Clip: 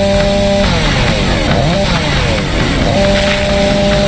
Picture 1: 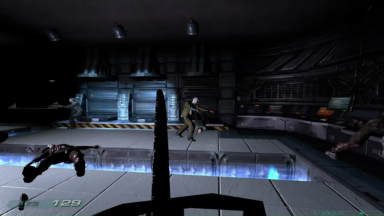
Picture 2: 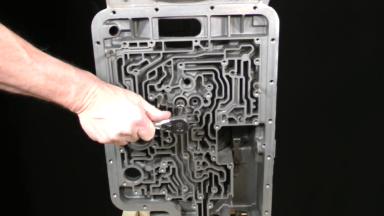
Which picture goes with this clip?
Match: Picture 1